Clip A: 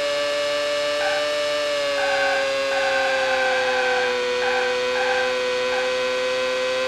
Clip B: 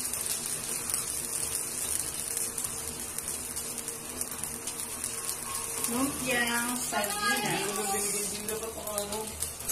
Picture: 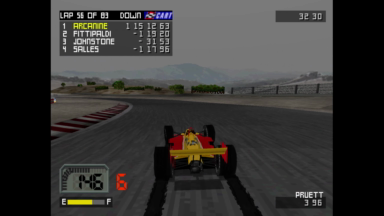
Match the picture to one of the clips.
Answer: A